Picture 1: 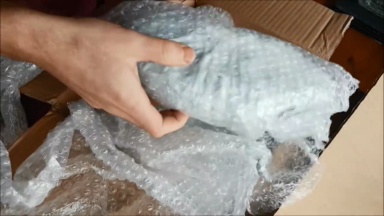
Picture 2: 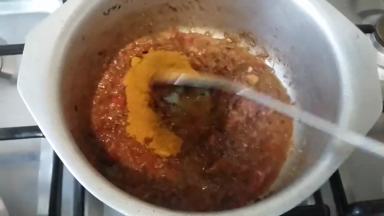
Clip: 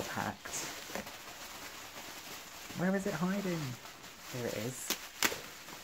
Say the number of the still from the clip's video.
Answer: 1